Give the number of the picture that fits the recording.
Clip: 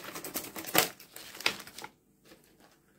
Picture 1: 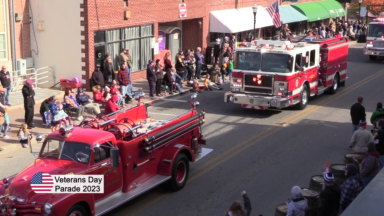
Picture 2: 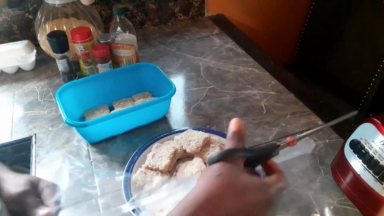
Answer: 2